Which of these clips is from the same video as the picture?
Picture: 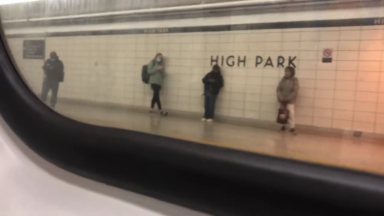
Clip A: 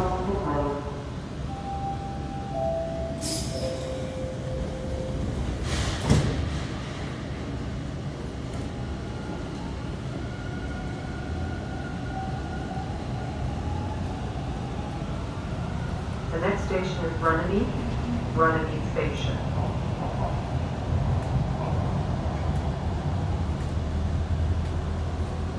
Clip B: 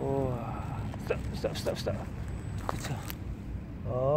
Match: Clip A